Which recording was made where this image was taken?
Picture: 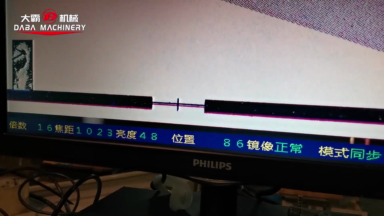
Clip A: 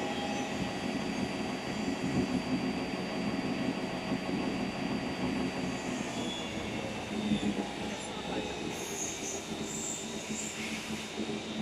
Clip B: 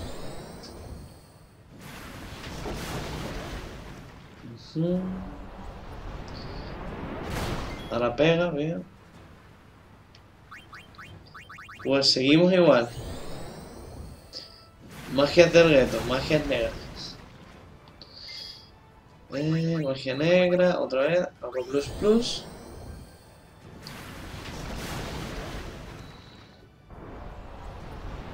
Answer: A